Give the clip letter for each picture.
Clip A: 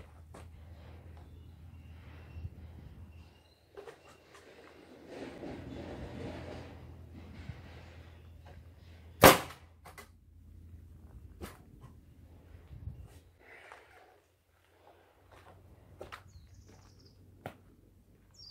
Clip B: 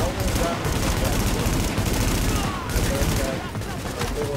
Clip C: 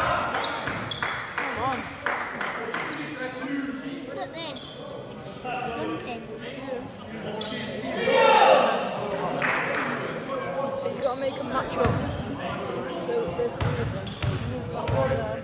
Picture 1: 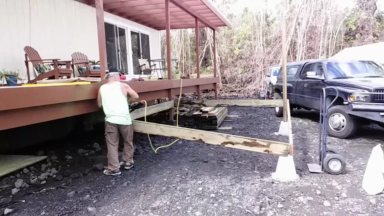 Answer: A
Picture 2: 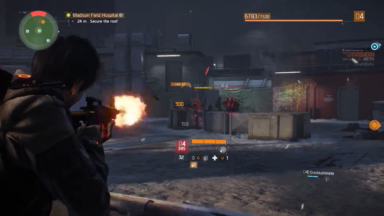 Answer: B